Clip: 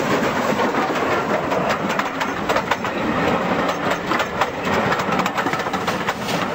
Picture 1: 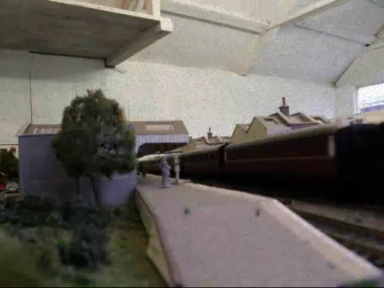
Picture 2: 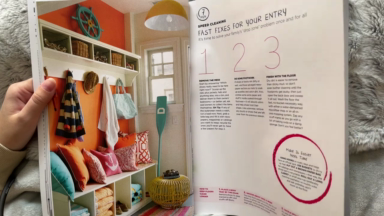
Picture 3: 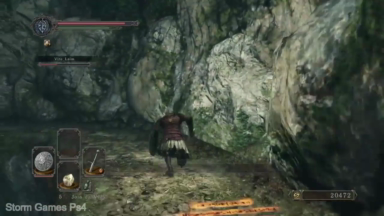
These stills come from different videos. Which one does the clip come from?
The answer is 1